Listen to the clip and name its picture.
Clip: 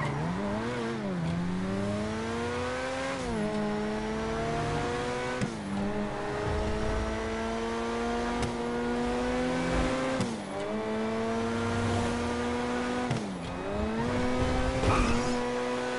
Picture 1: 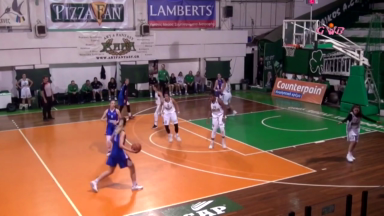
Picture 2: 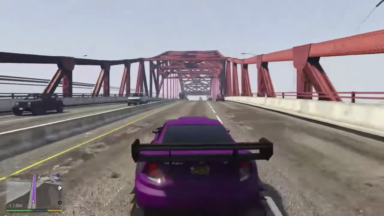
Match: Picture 2